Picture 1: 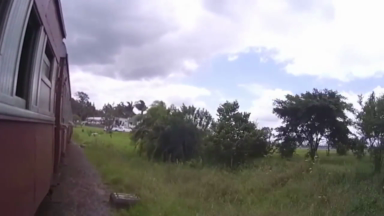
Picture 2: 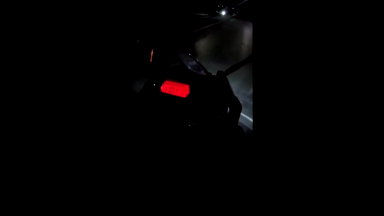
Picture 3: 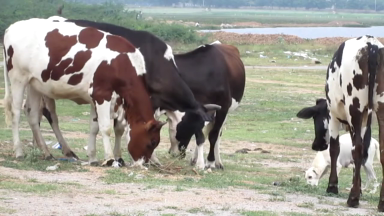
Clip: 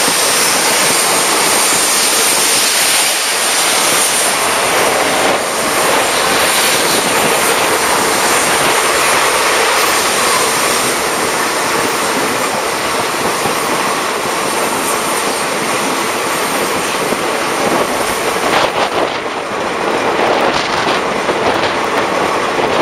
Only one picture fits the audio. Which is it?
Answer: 1